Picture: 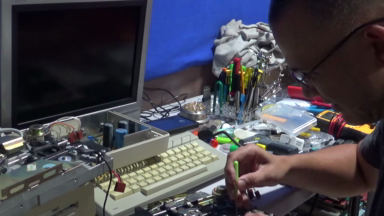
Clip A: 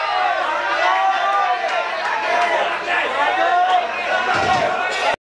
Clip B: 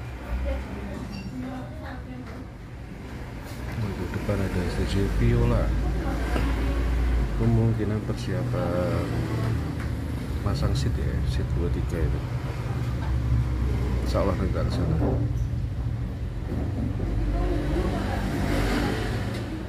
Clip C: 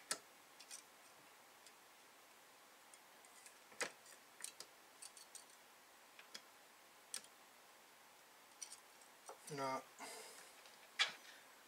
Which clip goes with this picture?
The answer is C